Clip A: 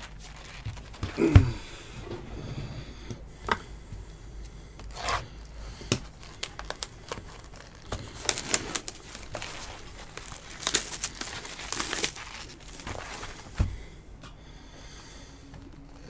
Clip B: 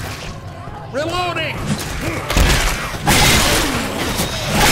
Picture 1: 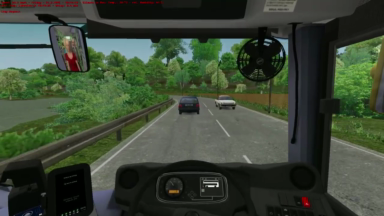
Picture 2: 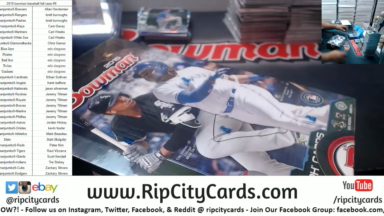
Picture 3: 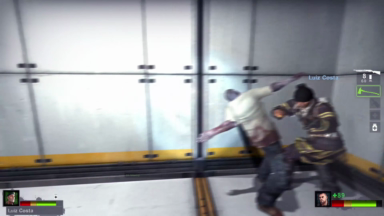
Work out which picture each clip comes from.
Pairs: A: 2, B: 3